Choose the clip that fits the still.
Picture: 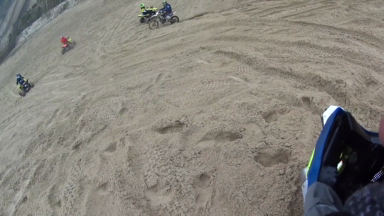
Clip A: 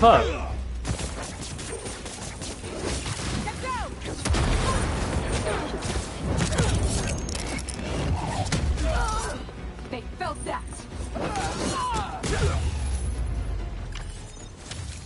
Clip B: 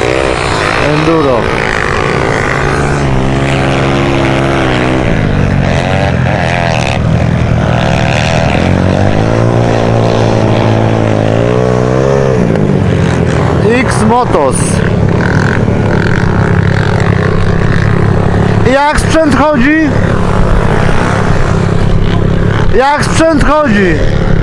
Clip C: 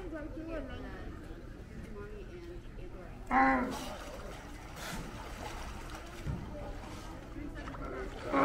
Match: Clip B